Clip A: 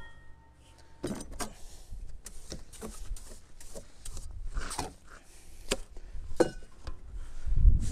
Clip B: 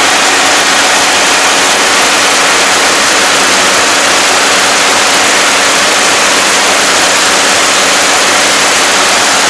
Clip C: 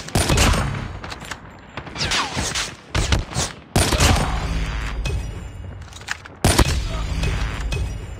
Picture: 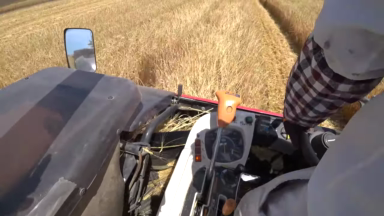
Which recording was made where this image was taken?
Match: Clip B